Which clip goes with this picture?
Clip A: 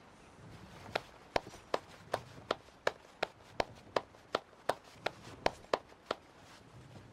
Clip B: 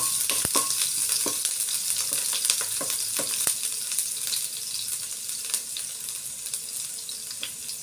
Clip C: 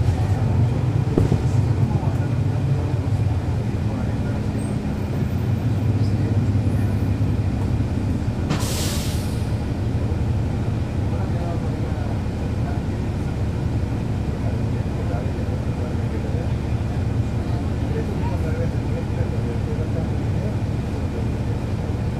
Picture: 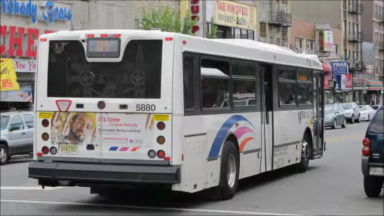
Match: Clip C